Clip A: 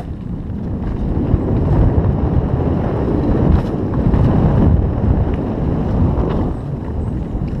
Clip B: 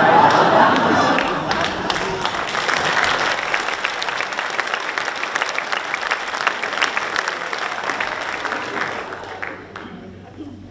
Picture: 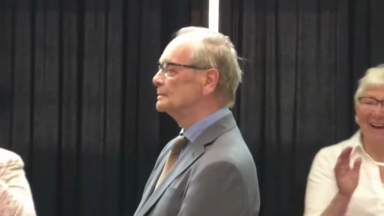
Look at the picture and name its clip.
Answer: B